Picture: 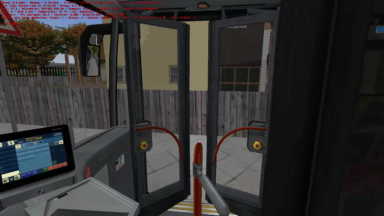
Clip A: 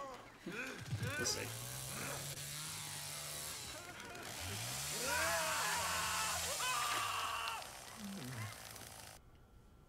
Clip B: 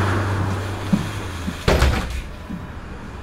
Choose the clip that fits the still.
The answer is B